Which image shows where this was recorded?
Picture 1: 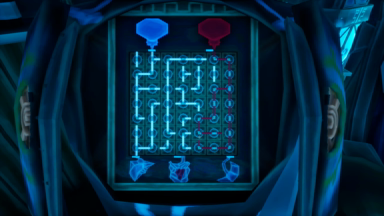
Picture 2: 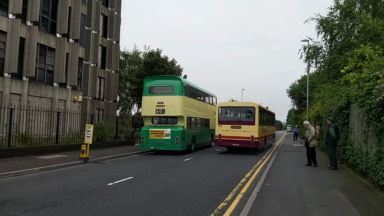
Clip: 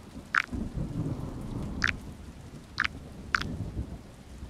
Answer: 1